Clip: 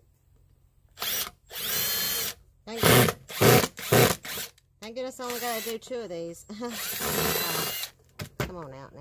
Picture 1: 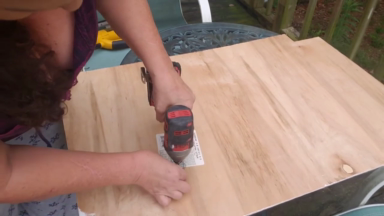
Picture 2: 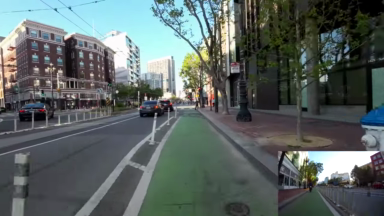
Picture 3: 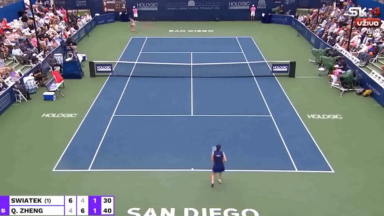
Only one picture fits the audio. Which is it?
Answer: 1